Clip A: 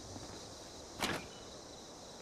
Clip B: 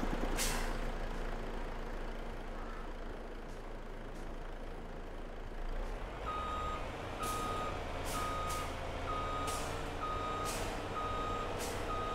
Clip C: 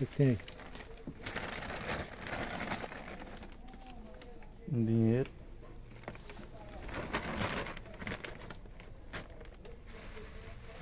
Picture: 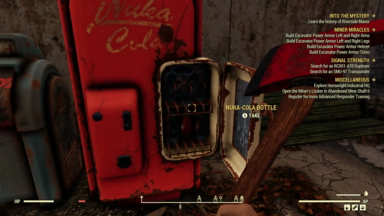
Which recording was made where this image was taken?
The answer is A